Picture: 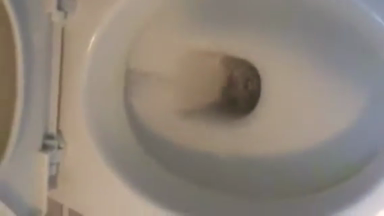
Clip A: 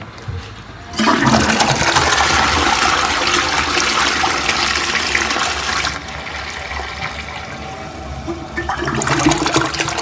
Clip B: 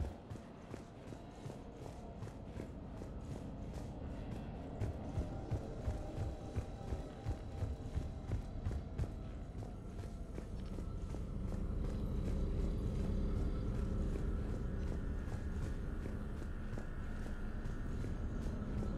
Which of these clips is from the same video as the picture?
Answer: A